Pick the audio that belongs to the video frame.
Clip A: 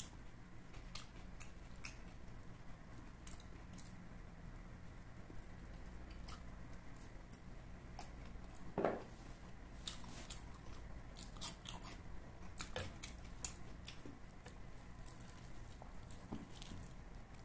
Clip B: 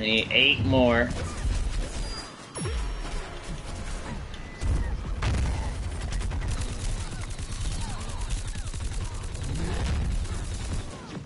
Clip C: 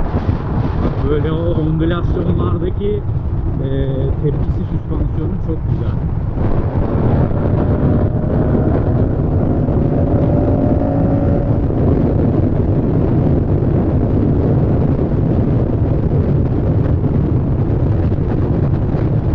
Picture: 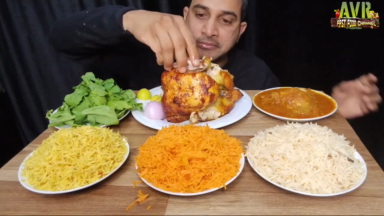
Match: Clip A